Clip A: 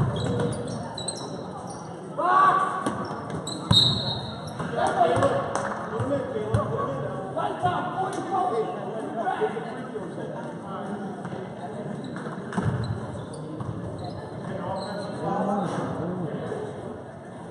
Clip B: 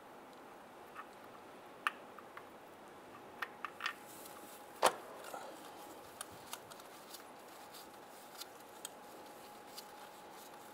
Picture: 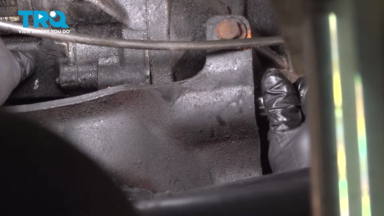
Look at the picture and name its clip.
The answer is B